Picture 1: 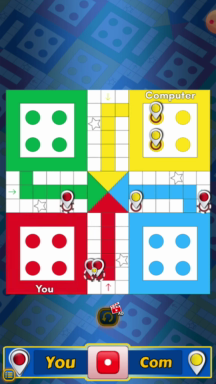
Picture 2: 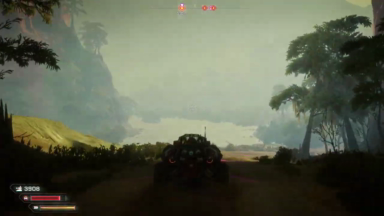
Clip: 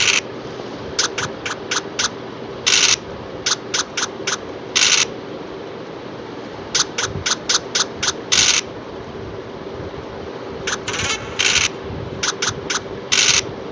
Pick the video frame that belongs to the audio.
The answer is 1